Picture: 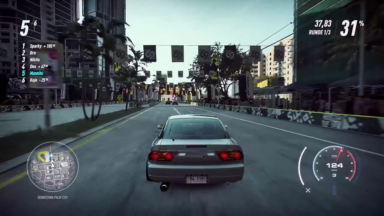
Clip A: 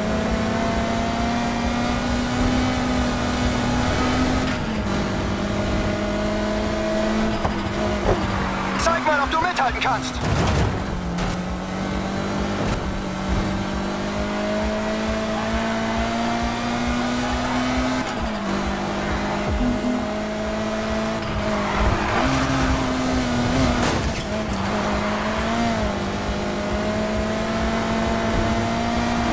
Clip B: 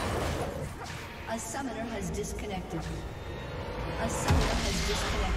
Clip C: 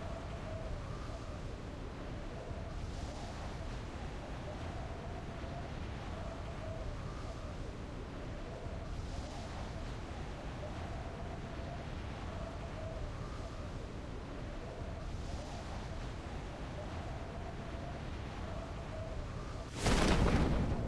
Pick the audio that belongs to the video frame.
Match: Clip A